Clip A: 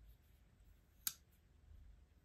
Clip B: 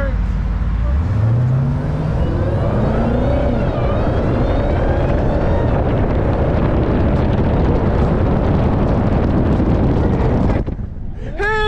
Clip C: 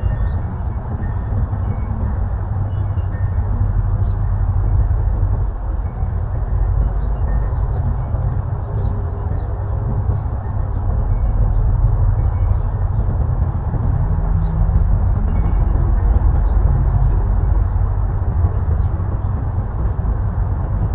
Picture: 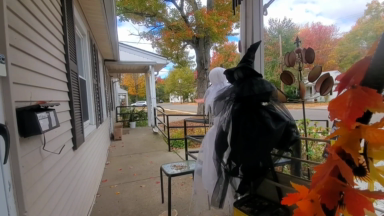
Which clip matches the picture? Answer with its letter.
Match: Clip C